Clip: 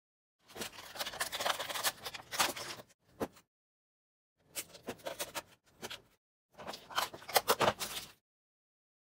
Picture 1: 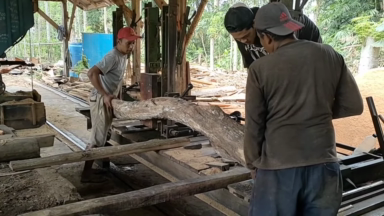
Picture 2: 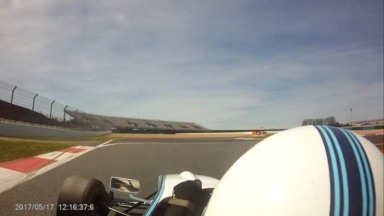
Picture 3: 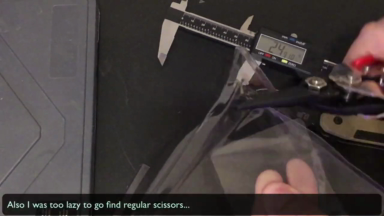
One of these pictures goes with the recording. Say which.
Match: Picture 3